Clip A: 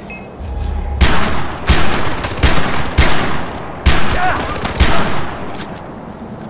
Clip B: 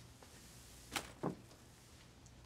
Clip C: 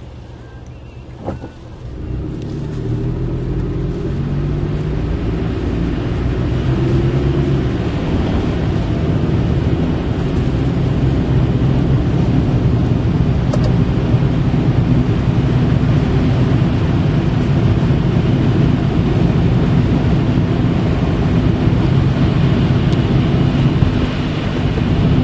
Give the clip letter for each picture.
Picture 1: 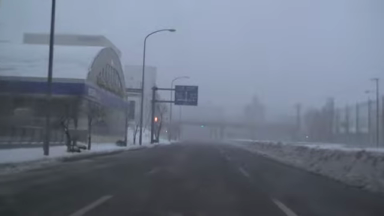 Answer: C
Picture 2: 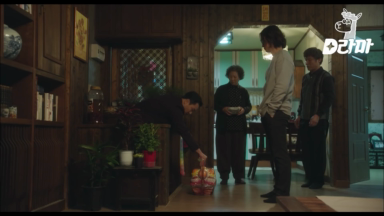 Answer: B